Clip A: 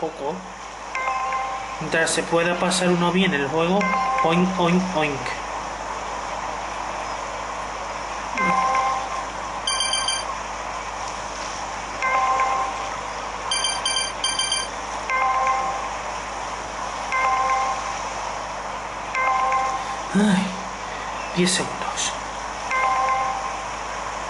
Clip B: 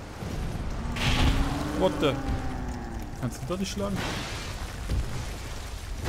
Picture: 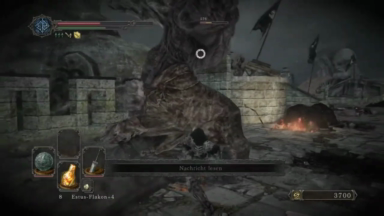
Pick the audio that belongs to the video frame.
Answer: B